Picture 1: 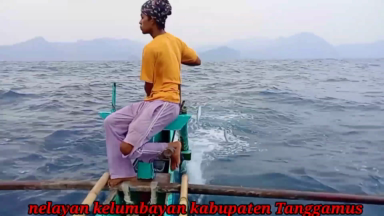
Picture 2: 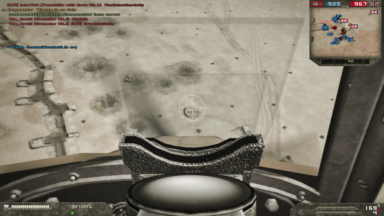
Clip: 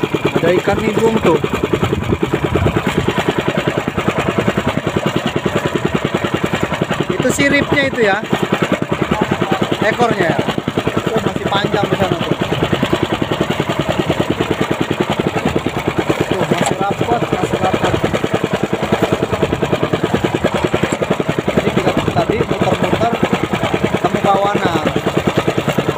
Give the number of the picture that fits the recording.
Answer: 1